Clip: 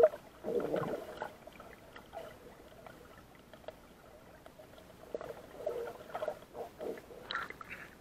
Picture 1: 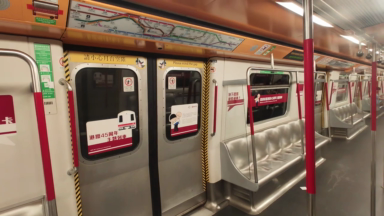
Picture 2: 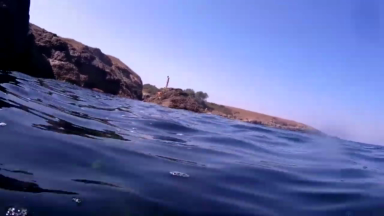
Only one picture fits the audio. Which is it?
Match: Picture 2